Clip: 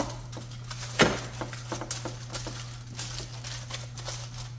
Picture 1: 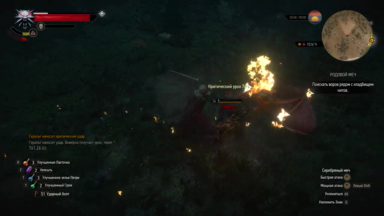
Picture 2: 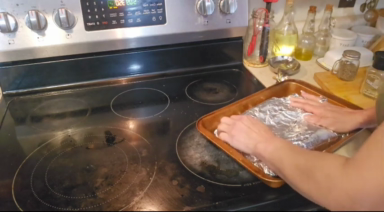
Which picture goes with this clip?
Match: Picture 2